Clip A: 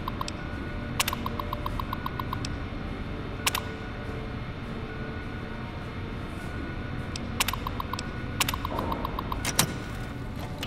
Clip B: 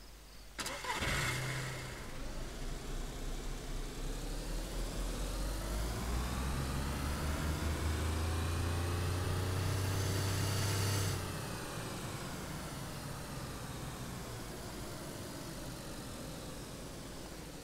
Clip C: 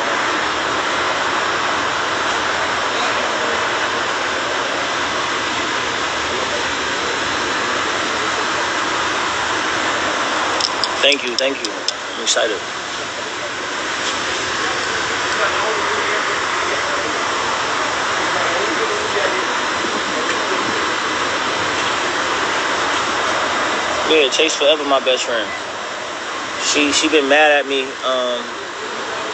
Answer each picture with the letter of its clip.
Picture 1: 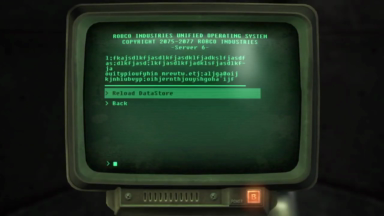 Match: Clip A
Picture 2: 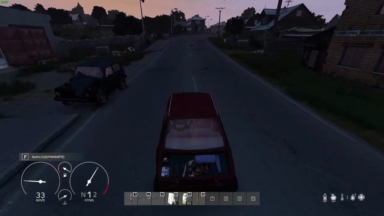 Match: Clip B